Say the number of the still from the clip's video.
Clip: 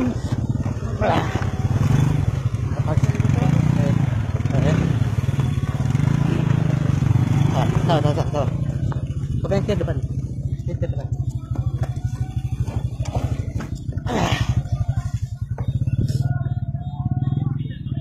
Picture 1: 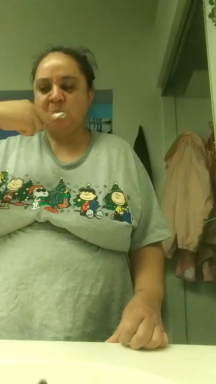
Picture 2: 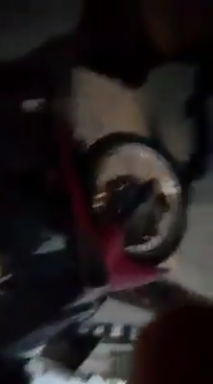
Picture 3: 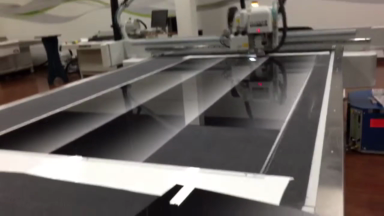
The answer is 2